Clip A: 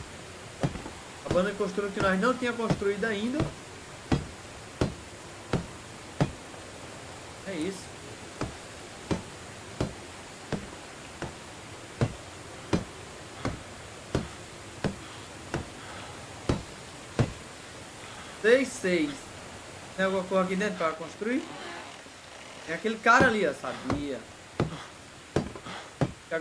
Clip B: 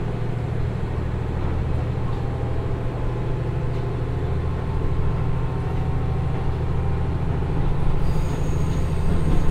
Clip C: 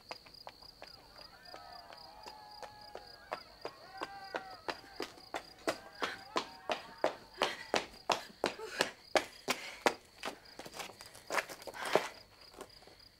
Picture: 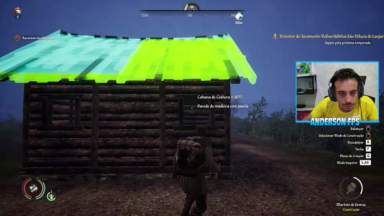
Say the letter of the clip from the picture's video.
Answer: A